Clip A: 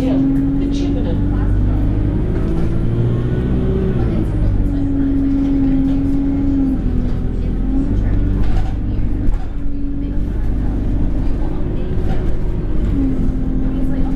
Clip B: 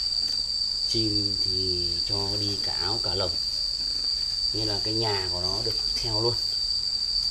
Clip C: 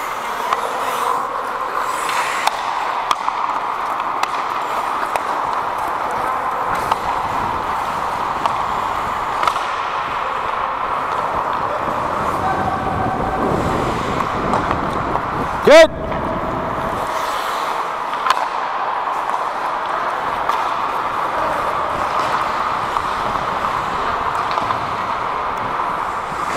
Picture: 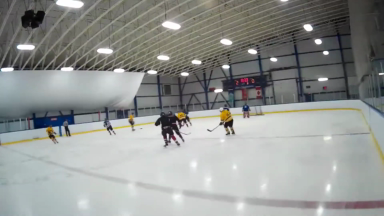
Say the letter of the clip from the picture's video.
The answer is C